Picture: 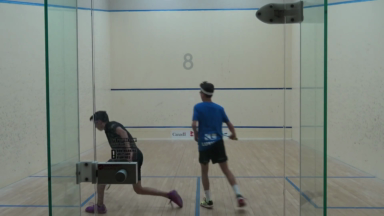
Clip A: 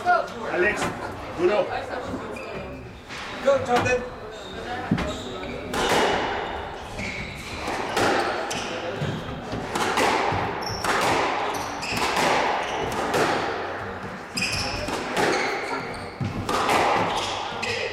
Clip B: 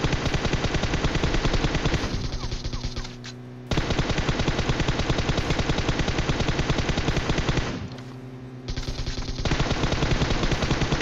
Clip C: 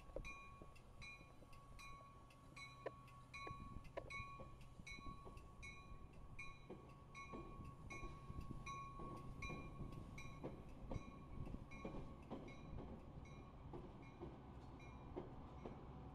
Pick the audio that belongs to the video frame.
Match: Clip A